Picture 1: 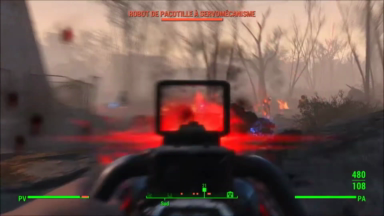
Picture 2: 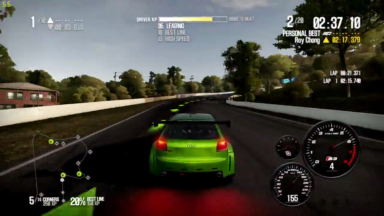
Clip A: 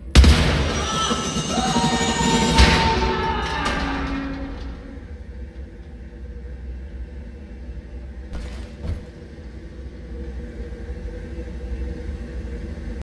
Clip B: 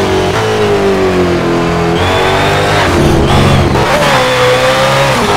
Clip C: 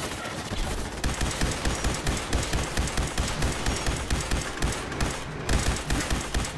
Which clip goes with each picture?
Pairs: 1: C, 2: B